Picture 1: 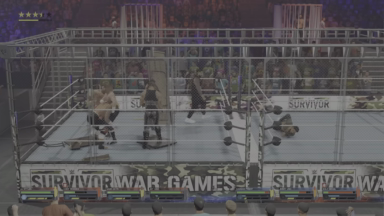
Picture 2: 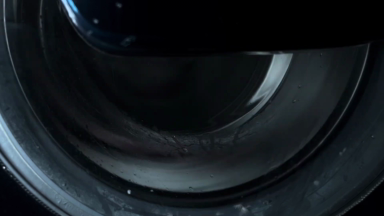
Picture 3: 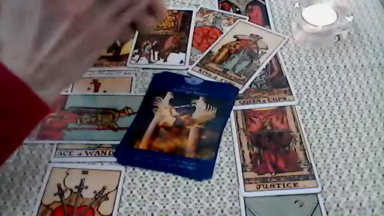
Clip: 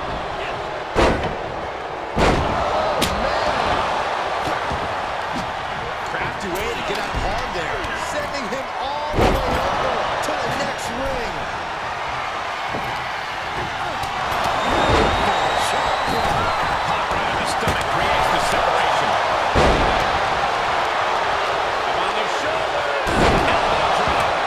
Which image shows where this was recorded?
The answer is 1